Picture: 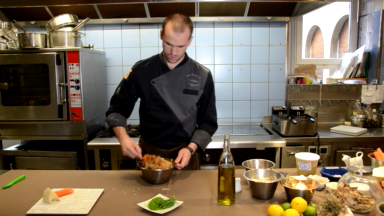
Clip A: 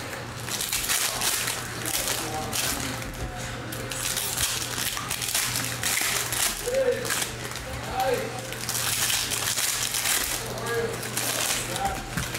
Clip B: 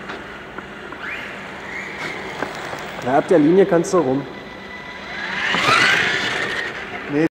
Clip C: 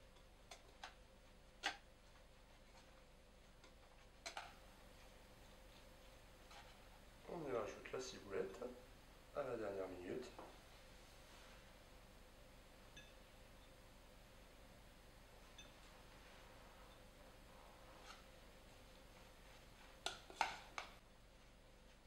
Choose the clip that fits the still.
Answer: C